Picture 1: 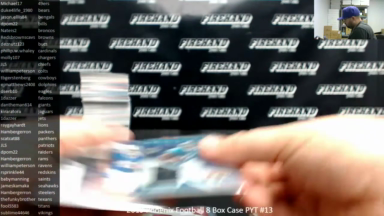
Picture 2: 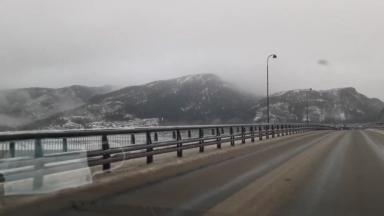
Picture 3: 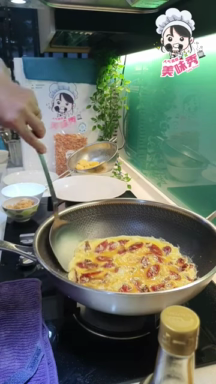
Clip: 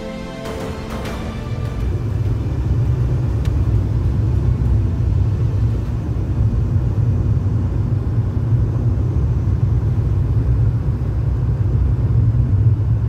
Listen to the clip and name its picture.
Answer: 2